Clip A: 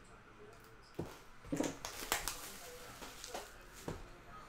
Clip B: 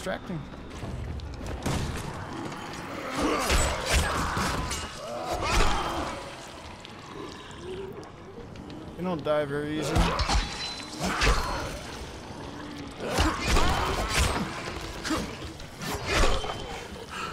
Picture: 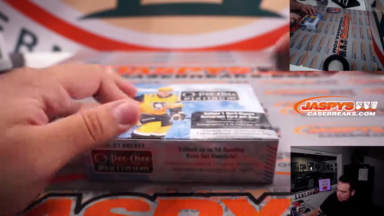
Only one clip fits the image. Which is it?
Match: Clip A